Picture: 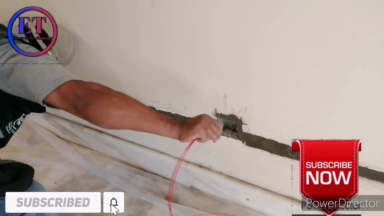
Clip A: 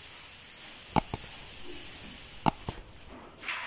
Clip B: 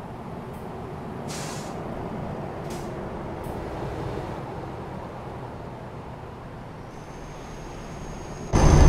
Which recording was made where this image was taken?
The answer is A